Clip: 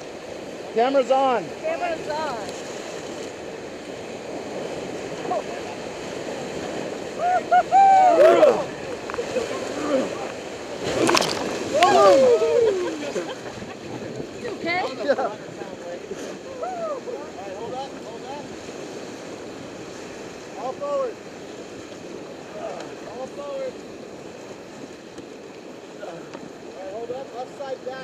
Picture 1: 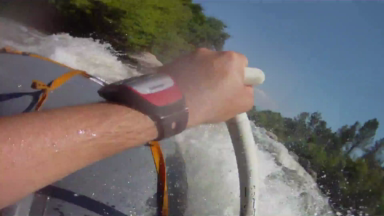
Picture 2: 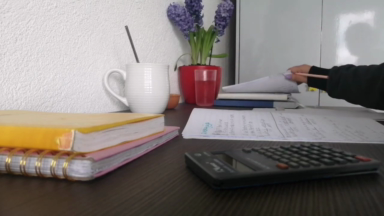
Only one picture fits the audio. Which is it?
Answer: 1